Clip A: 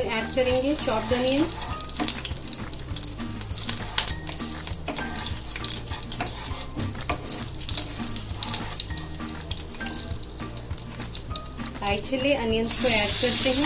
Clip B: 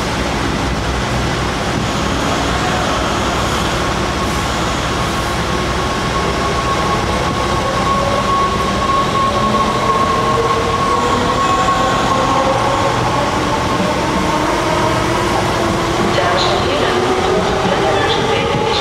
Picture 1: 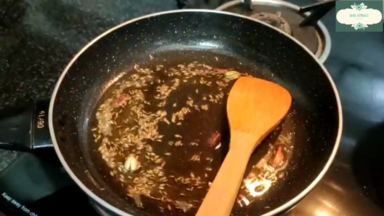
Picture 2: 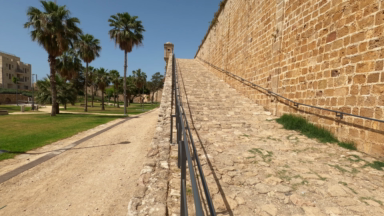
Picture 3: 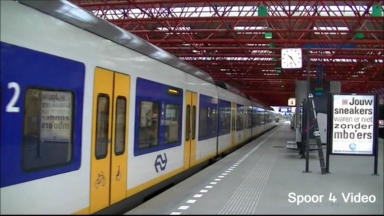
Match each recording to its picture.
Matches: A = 1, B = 3